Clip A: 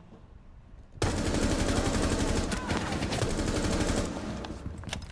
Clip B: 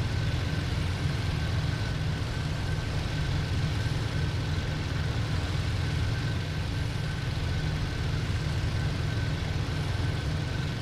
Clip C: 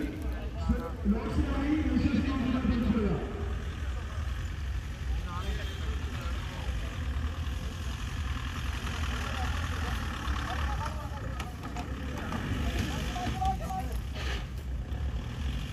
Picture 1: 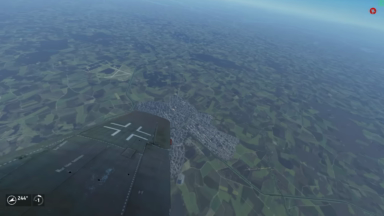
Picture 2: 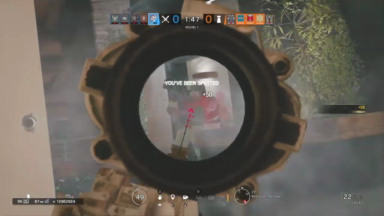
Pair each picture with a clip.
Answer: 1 B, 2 A